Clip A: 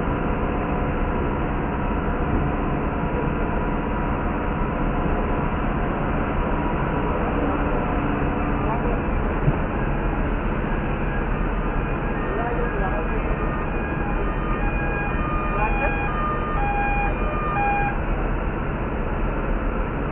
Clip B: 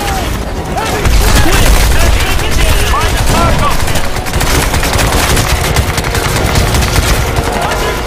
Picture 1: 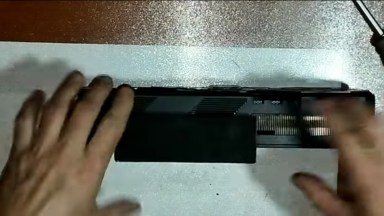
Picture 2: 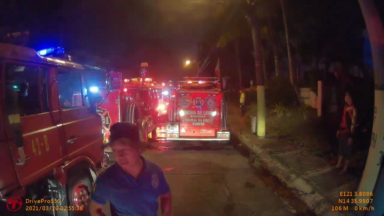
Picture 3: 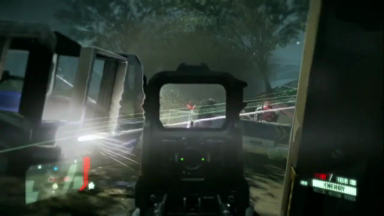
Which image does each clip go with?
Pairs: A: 2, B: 3